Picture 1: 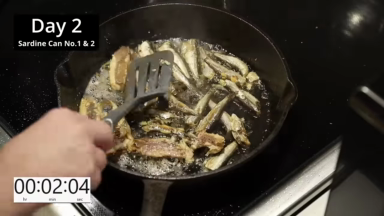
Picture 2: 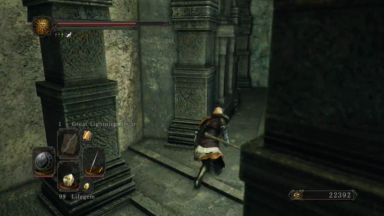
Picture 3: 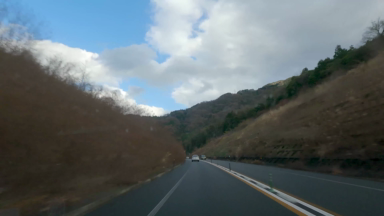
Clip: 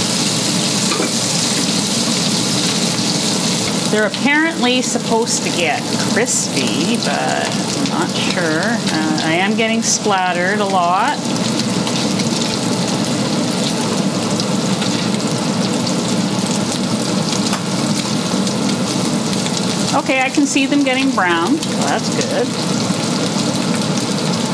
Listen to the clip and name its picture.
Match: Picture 1